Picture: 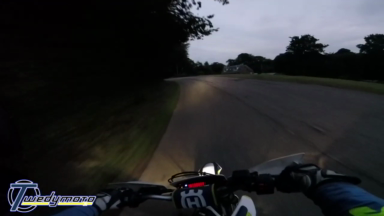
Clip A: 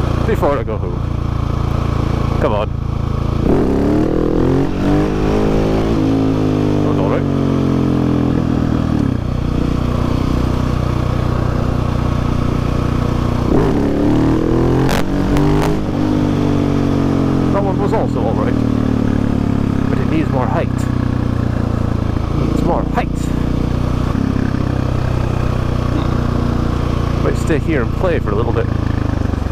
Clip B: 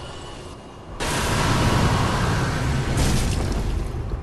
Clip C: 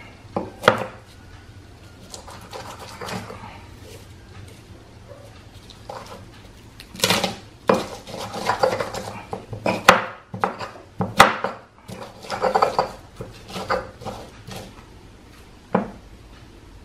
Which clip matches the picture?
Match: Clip A